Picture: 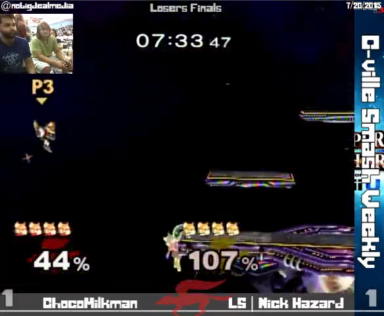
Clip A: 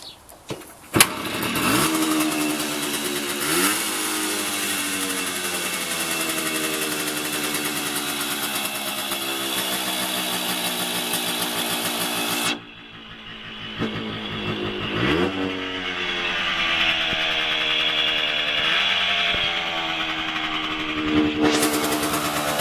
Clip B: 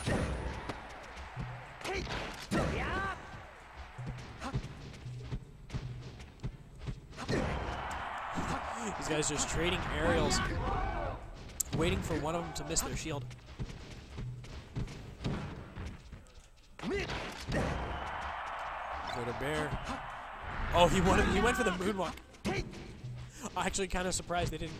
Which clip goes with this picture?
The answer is B